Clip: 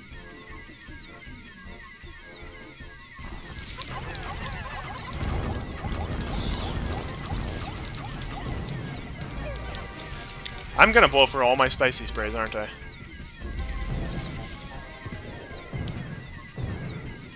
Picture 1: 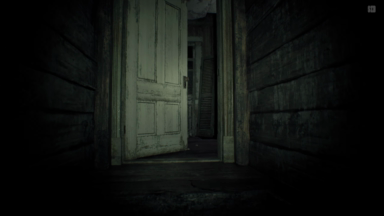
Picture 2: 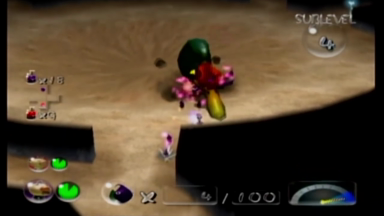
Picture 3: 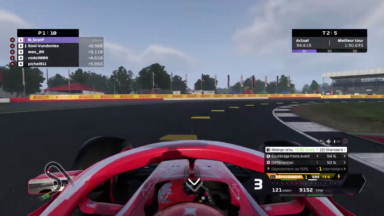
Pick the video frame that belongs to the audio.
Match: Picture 2